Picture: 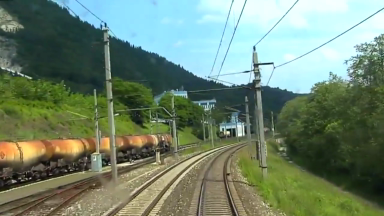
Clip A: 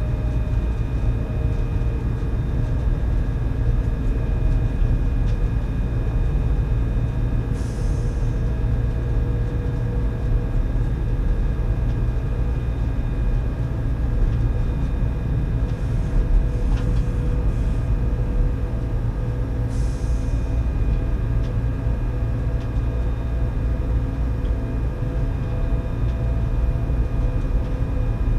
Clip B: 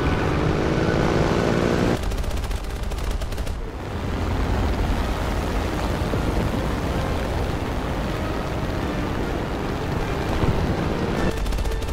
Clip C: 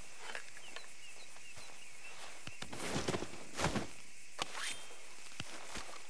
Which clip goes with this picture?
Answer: A